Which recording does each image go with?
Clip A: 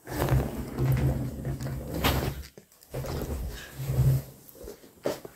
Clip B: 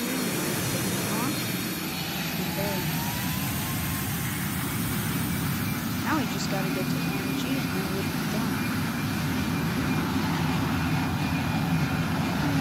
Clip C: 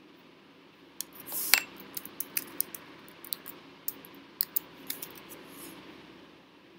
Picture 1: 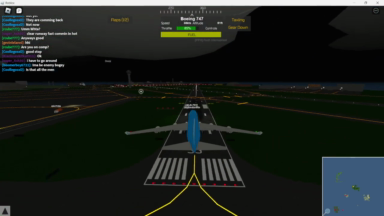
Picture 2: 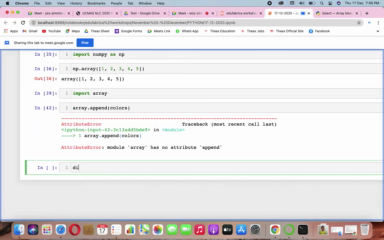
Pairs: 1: B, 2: C